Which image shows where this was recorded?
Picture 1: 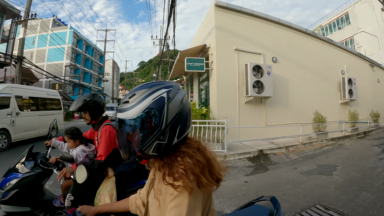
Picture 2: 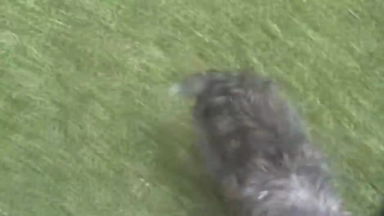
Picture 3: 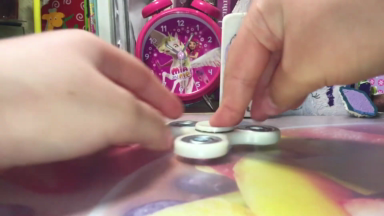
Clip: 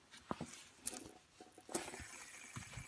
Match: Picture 3